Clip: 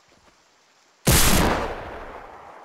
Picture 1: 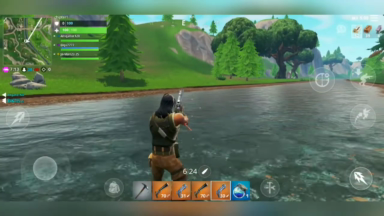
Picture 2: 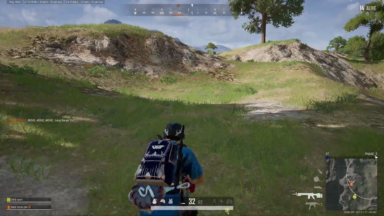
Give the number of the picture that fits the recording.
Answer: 1